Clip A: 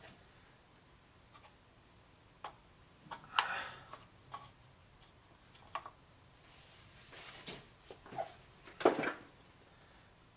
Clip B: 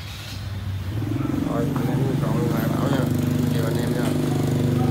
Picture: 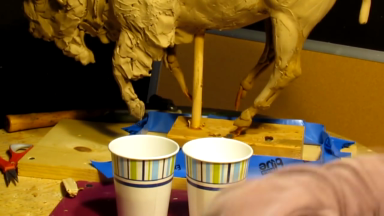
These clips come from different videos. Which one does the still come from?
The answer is A